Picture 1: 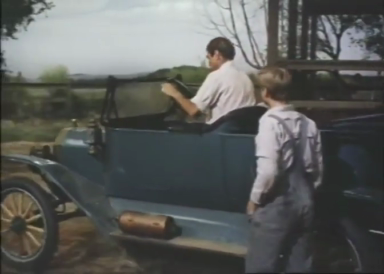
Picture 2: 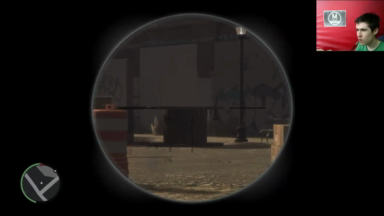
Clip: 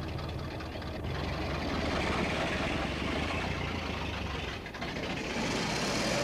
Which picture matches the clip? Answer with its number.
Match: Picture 1